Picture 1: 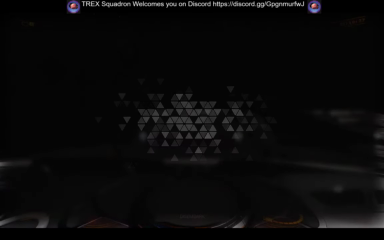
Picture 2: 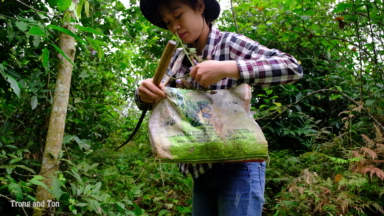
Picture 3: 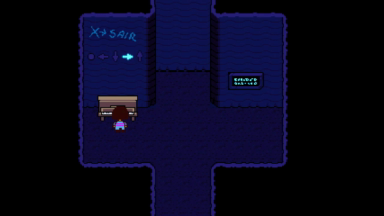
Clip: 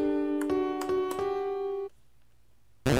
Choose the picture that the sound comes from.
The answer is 3